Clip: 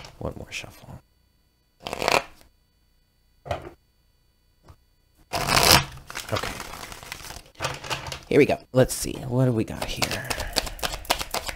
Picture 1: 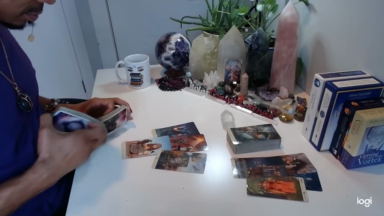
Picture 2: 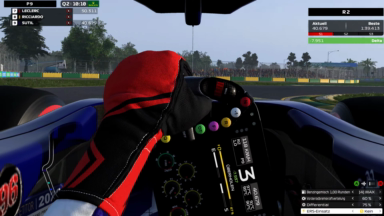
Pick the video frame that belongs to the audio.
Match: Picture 1